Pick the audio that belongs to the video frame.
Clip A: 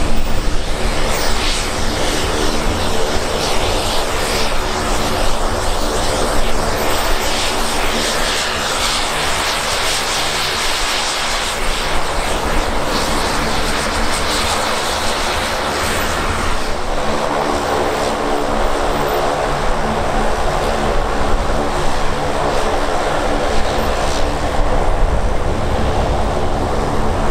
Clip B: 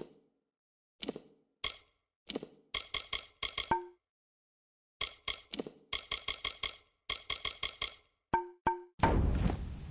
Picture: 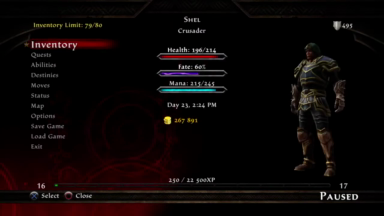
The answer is B